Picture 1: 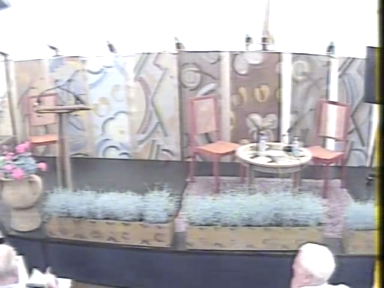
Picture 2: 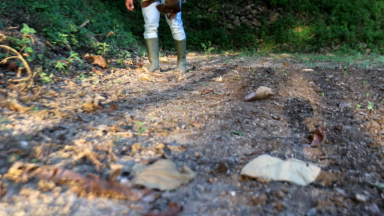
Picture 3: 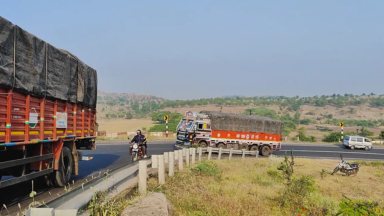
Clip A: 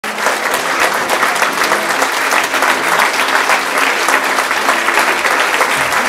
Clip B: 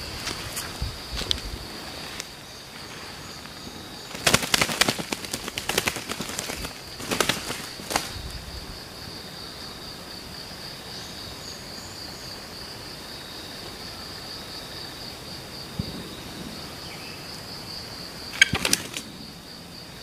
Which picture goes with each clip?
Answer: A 1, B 2